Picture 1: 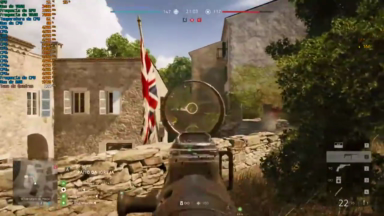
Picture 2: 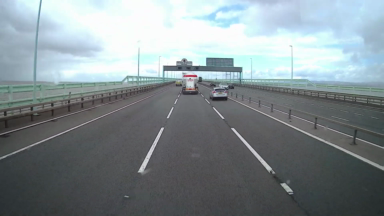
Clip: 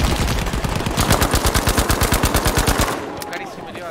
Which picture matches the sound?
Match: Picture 1